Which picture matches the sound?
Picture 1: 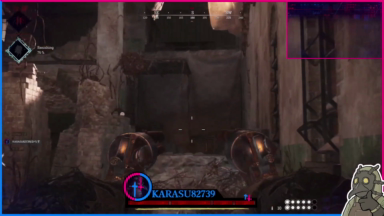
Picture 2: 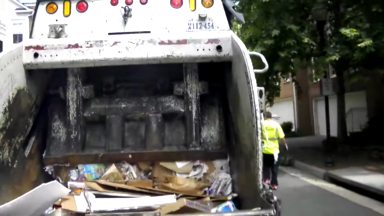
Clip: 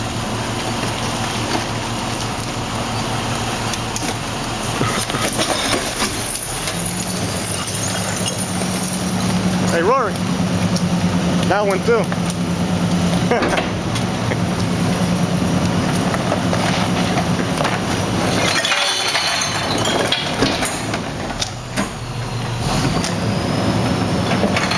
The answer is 2